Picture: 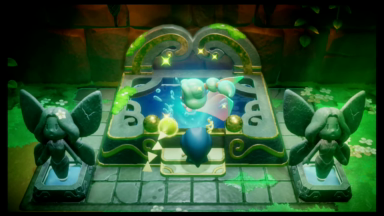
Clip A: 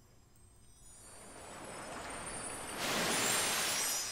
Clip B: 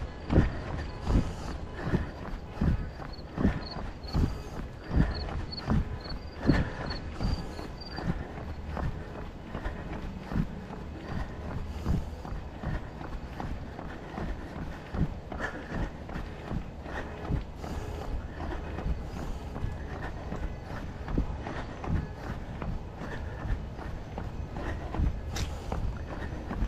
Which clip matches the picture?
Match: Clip A